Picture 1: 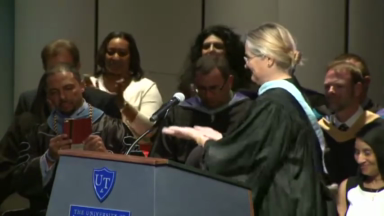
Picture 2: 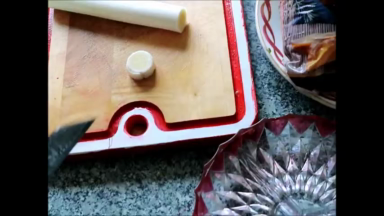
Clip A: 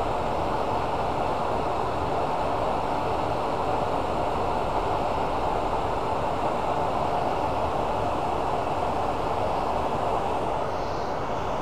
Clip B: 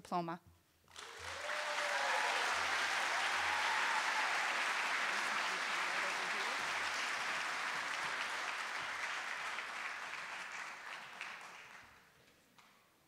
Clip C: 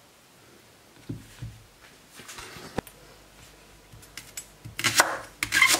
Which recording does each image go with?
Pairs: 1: B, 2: C